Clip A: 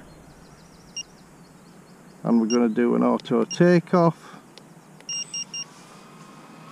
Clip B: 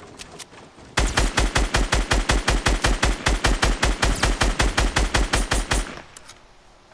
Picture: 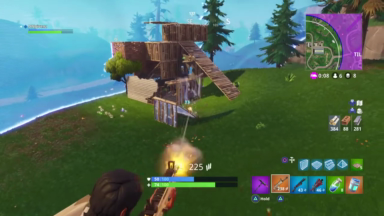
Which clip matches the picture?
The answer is B